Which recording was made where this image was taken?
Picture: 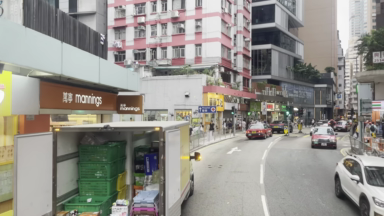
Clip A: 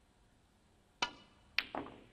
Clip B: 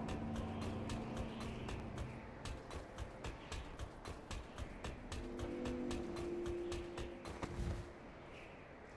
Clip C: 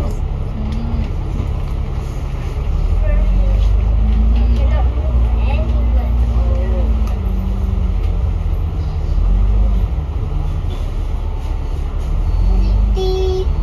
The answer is C